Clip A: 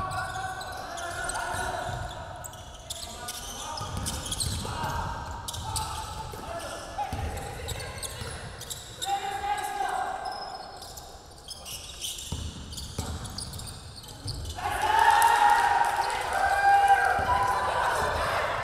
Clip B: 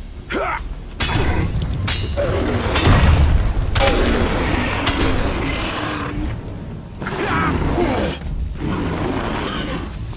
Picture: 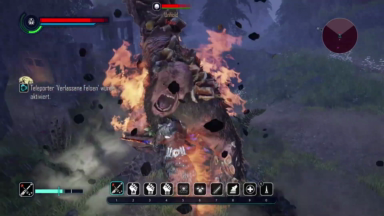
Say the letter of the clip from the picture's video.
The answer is B